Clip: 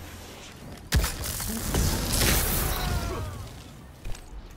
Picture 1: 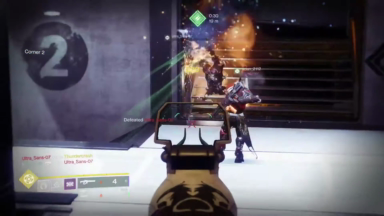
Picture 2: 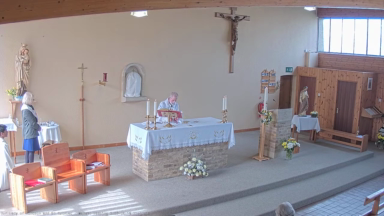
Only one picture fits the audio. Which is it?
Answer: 1